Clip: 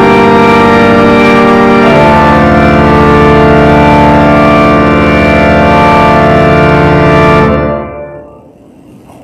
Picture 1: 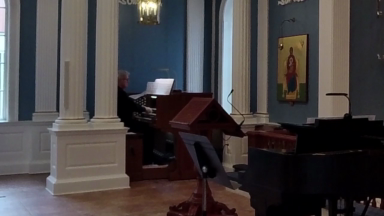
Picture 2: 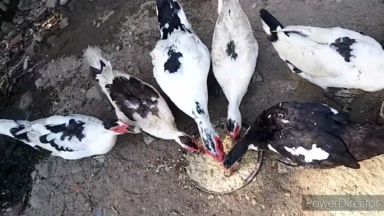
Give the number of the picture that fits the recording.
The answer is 1